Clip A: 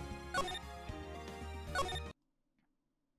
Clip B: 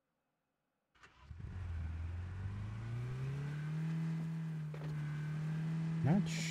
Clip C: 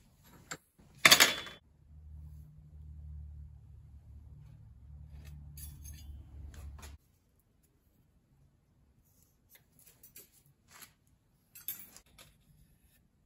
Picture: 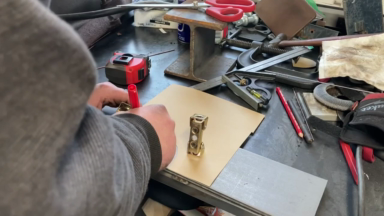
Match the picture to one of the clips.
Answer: C